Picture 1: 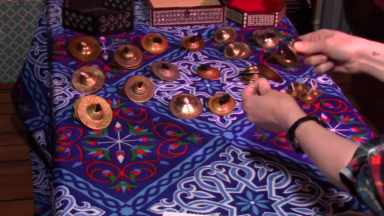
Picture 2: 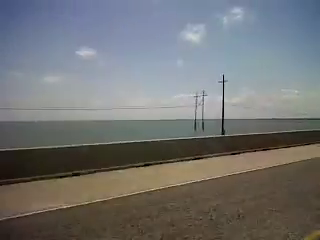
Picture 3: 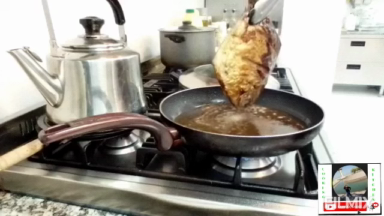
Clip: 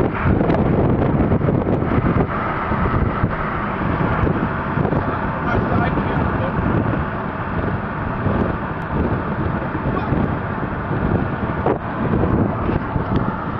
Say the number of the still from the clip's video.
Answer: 2